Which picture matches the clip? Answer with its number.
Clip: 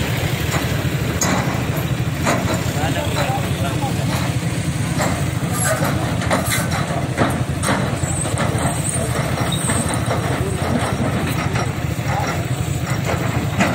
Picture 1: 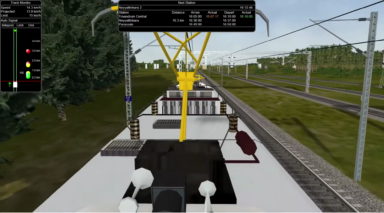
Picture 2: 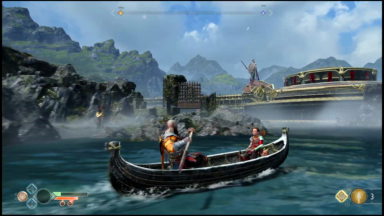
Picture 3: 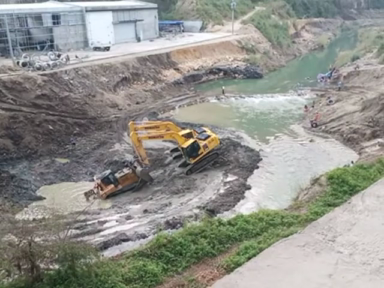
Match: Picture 3